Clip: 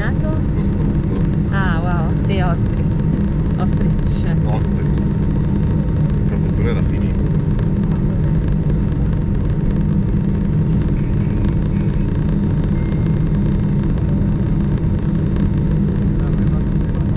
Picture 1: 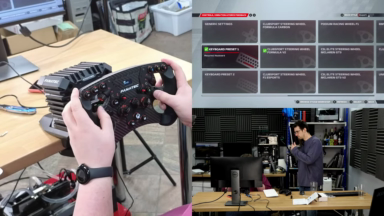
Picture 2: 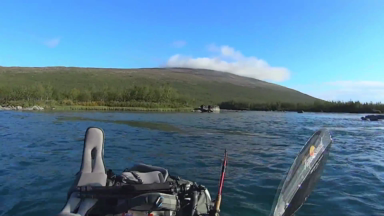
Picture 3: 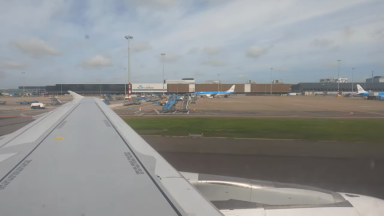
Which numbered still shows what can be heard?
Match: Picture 3